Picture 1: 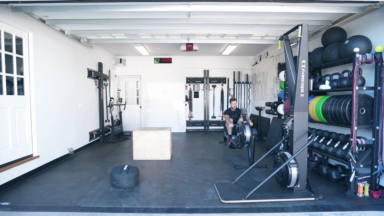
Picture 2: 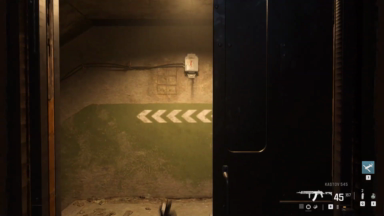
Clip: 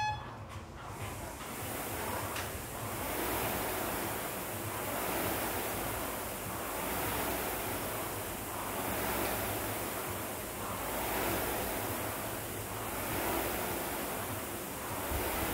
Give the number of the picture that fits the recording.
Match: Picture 1